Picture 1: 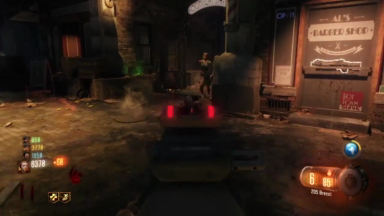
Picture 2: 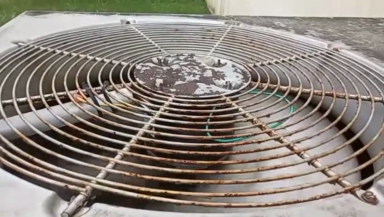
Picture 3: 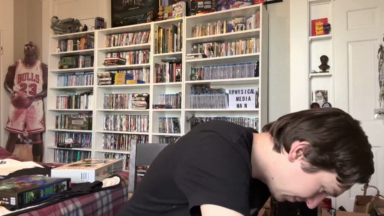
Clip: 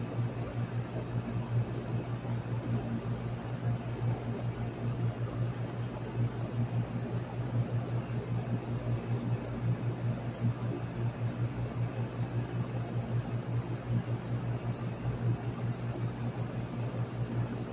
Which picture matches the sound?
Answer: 2